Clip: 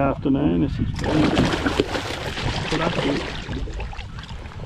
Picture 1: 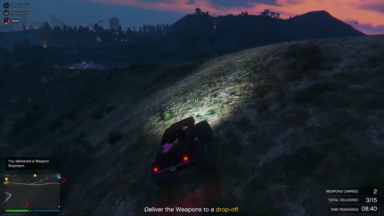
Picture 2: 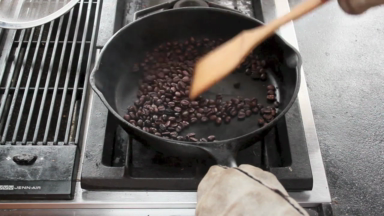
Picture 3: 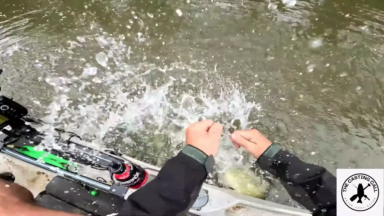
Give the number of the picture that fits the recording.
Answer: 3